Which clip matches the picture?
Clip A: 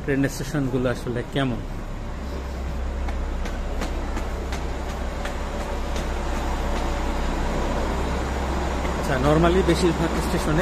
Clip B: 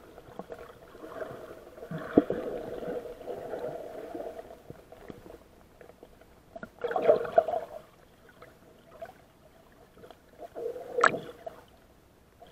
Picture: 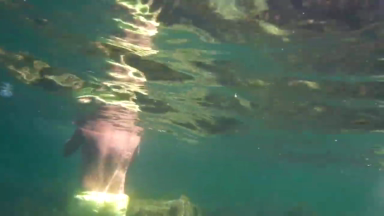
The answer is B